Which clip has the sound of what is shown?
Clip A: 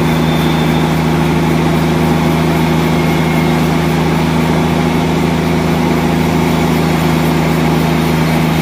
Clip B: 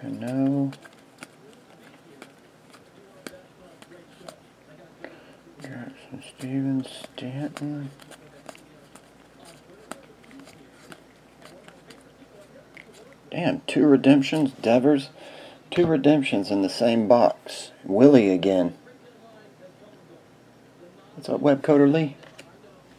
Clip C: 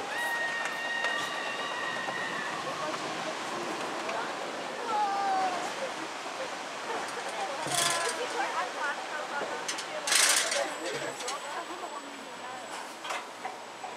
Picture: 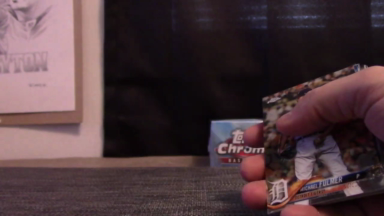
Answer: B